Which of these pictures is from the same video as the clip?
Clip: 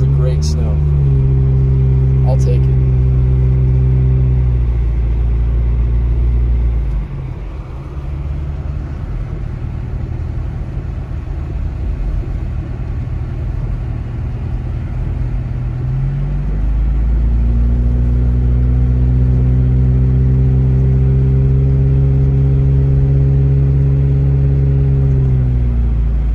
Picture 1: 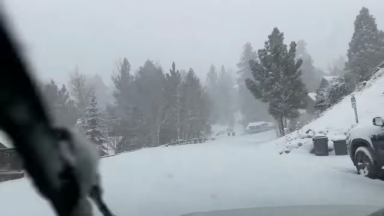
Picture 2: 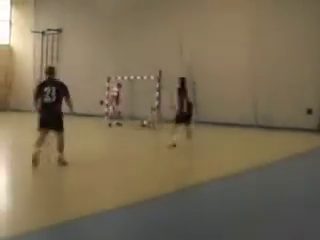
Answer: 1